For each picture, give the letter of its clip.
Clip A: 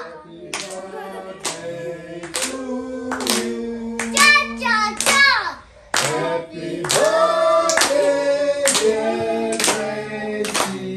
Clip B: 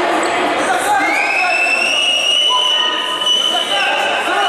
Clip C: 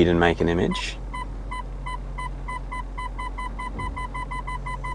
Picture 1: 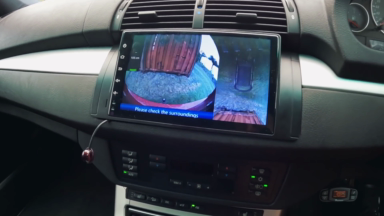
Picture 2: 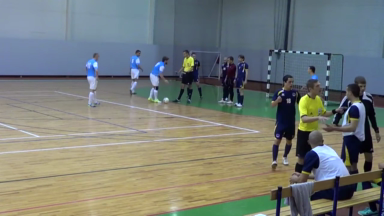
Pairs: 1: C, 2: B